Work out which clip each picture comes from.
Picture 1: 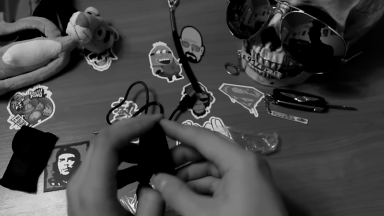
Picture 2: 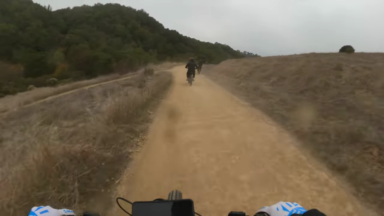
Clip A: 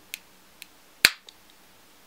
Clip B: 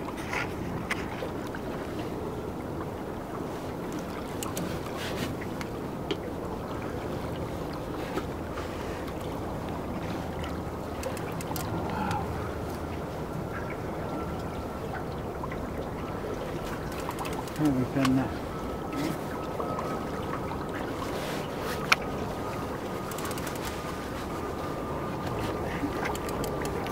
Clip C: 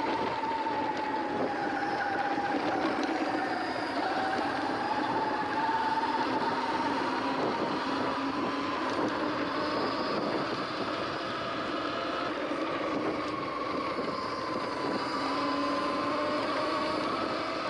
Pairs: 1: A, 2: C